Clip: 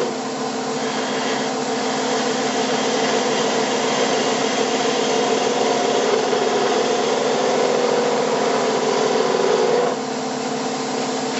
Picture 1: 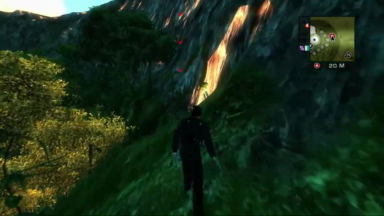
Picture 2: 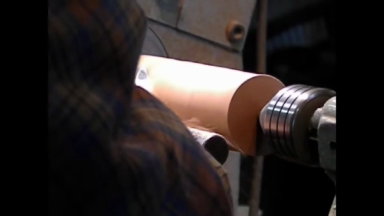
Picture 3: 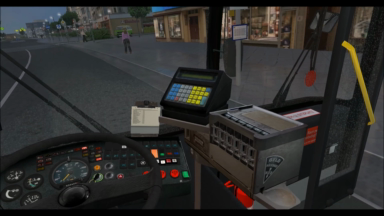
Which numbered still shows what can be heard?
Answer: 2